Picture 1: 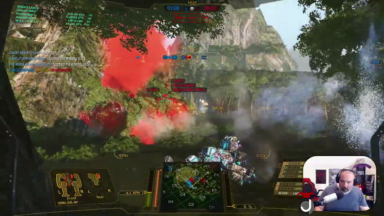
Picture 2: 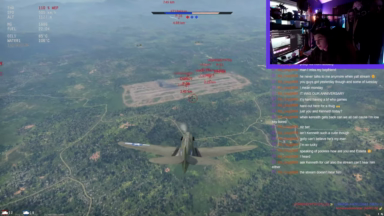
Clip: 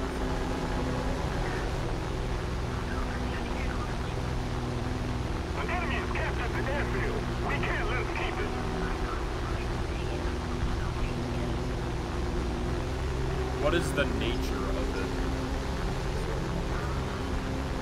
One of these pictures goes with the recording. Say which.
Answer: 2